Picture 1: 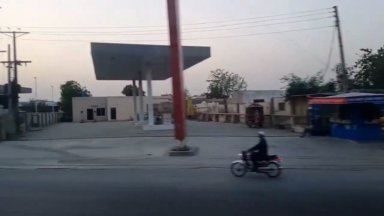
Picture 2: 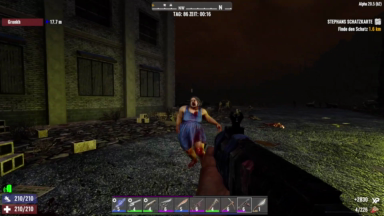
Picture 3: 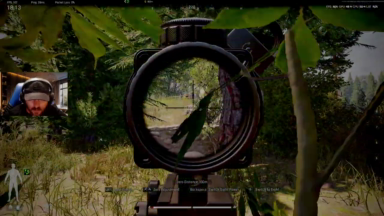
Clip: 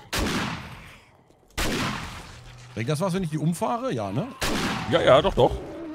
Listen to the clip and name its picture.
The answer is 2